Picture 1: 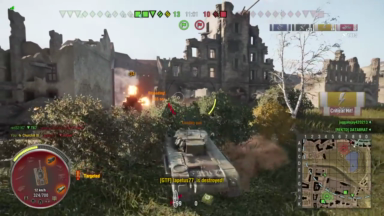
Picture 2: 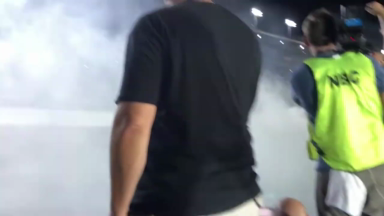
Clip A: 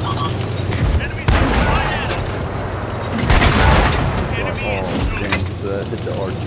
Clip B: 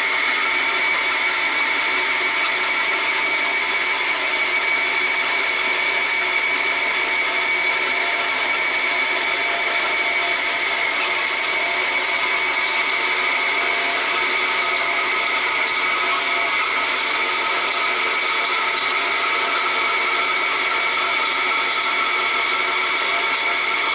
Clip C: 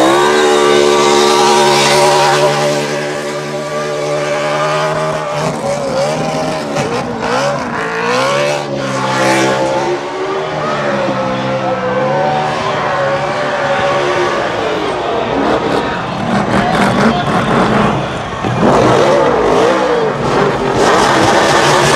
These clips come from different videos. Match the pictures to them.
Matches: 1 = A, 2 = C